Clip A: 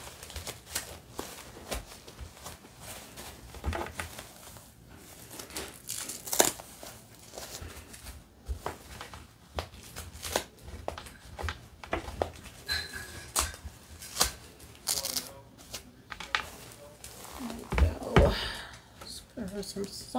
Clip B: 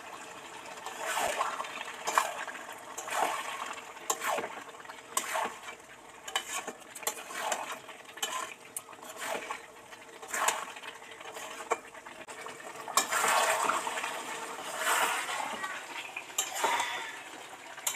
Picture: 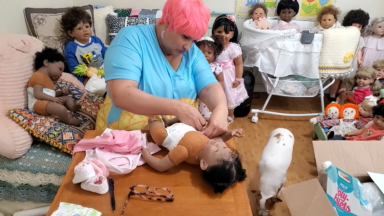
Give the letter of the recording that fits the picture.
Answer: A